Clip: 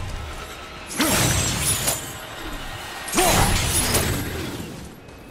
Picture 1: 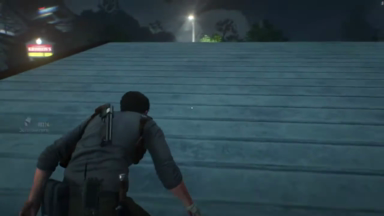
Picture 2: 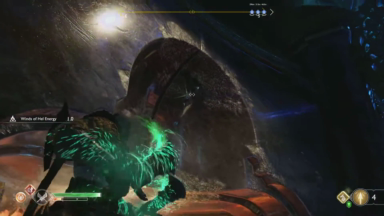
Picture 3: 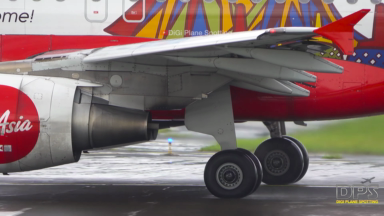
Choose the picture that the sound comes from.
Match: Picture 2